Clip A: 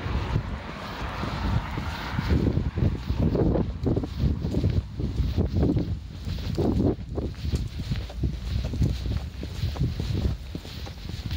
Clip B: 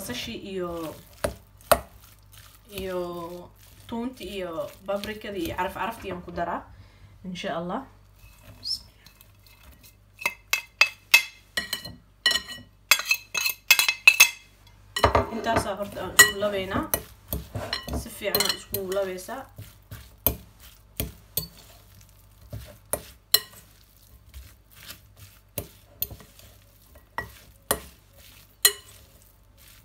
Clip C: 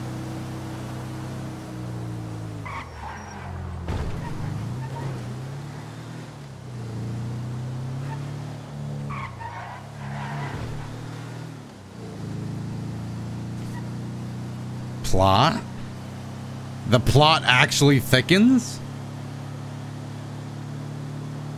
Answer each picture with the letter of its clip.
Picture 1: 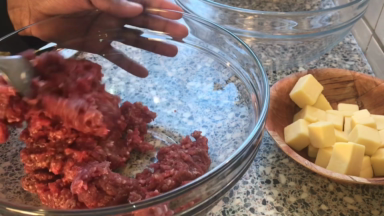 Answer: B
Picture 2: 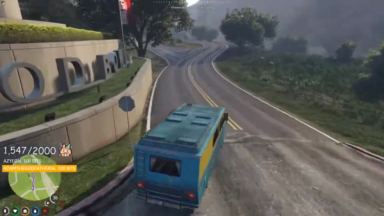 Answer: C